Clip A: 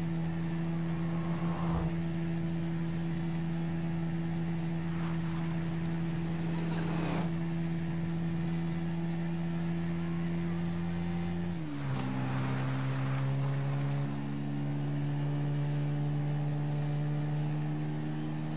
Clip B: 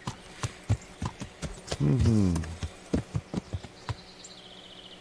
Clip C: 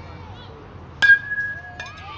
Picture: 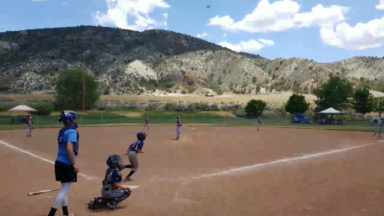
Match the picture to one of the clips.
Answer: C